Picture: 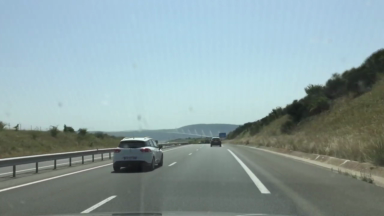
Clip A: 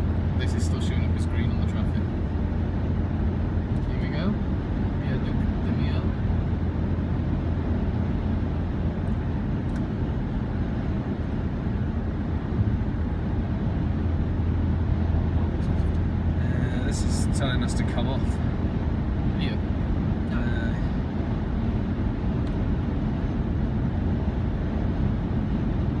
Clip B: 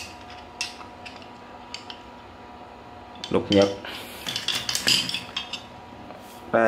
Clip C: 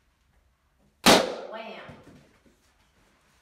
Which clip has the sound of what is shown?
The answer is A